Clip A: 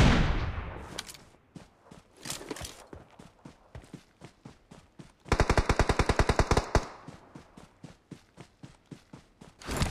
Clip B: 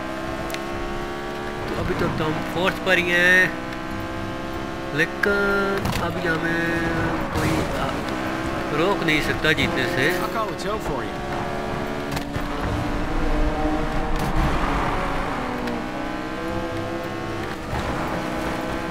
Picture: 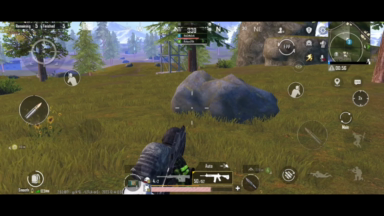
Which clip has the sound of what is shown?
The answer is A